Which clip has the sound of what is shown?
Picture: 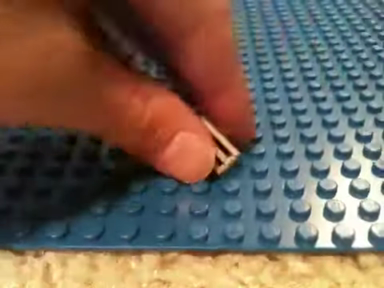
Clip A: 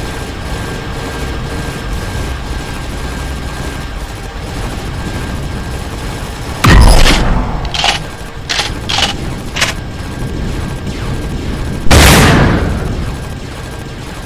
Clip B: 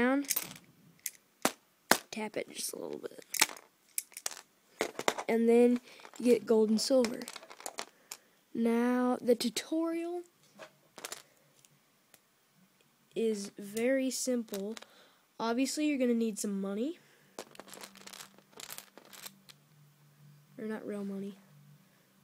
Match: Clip B